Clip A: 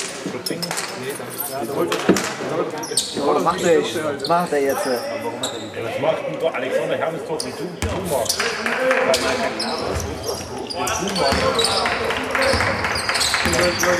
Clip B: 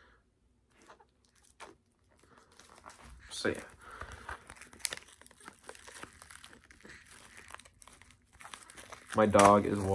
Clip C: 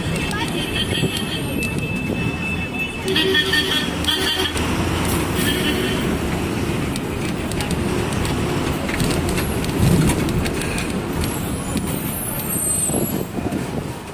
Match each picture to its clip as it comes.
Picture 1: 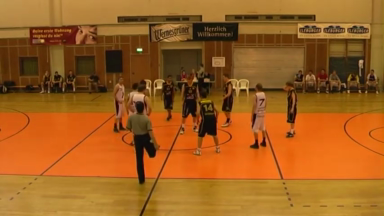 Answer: A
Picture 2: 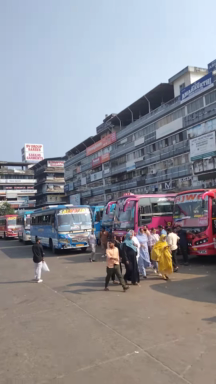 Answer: C